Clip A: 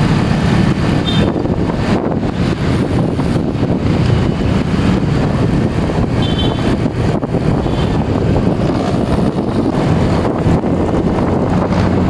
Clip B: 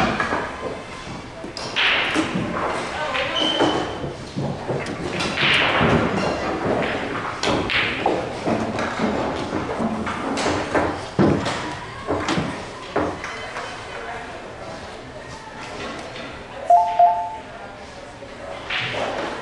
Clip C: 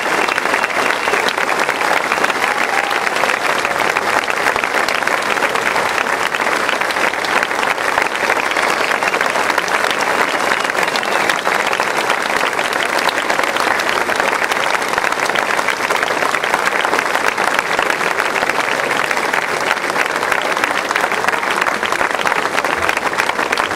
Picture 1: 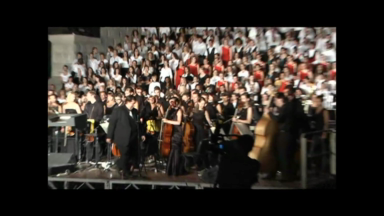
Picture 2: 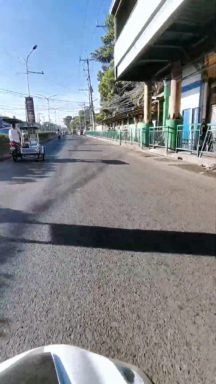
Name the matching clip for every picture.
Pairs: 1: C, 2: A